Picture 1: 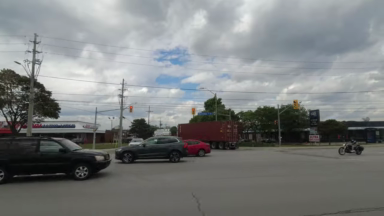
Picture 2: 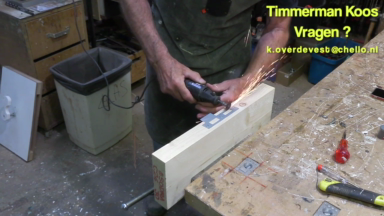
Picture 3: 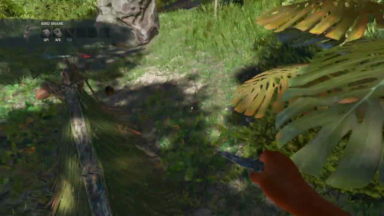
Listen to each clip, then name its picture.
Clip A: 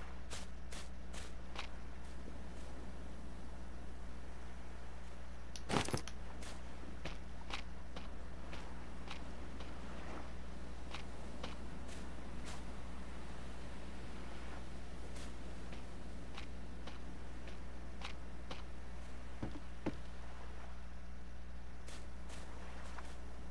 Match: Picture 3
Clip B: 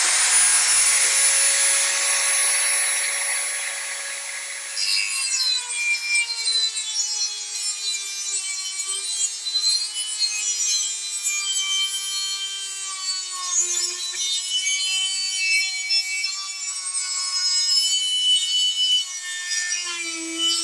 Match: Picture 2